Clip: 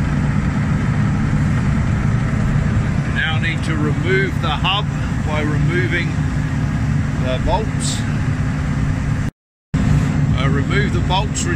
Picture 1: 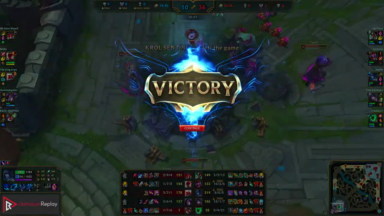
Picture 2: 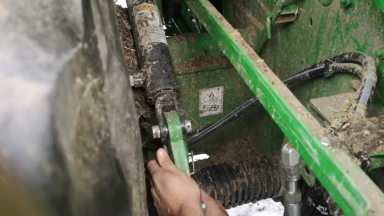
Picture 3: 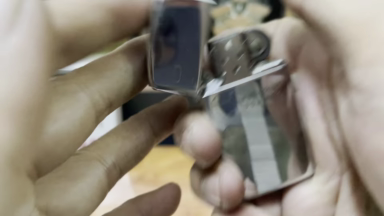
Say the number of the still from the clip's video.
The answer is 2